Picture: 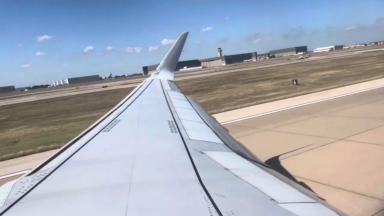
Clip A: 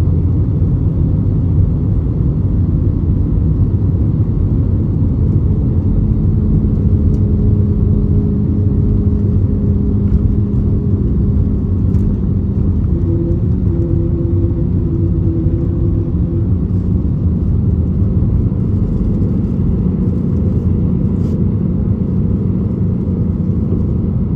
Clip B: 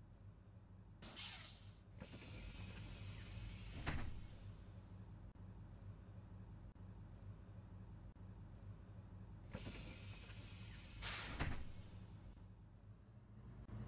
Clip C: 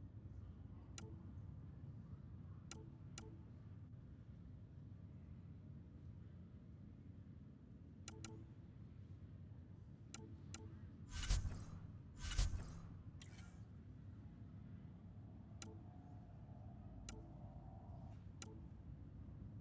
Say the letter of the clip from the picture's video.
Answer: A